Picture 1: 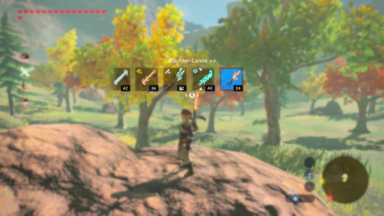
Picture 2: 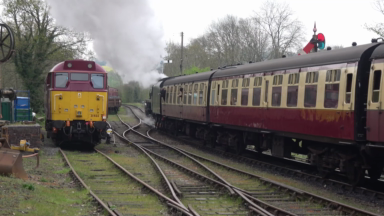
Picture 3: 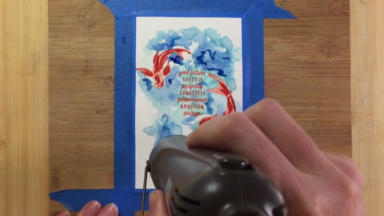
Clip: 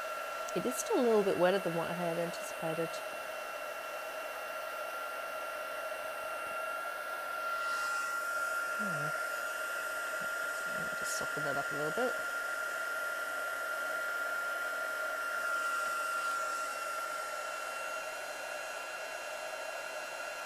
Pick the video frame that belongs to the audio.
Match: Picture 3